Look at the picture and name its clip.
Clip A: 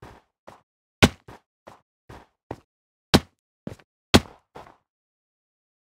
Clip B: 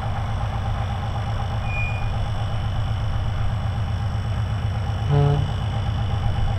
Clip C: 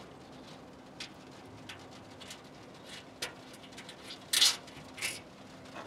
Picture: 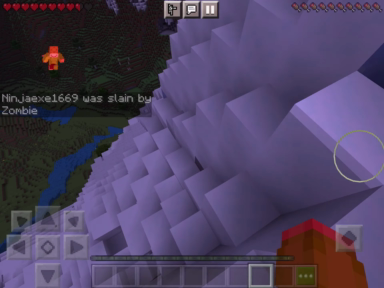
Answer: A